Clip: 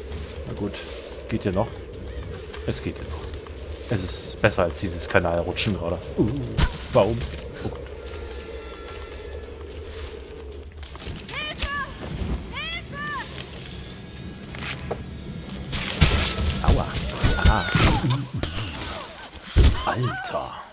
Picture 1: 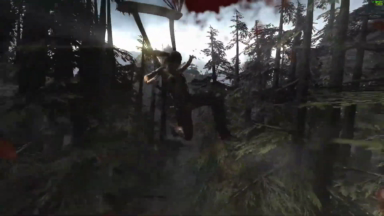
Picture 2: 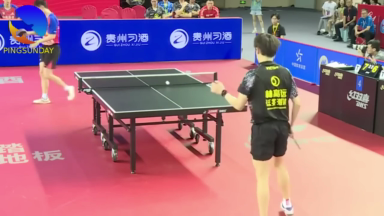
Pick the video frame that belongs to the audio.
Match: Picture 1